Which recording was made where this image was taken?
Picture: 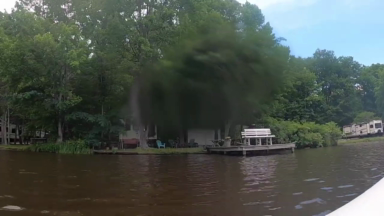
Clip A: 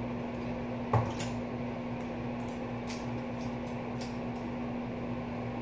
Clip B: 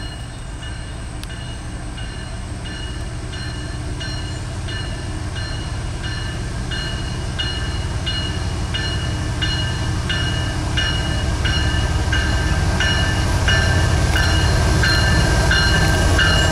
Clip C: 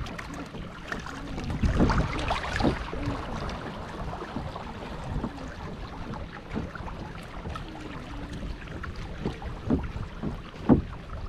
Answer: C